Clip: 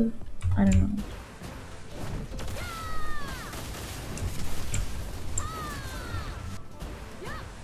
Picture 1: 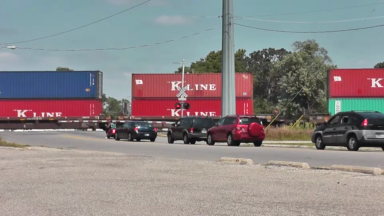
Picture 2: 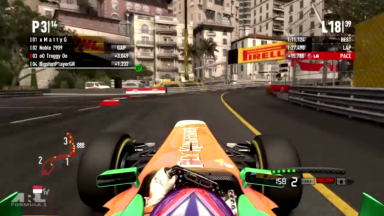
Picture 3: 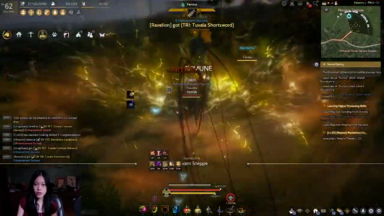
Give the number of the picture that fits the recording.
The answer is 3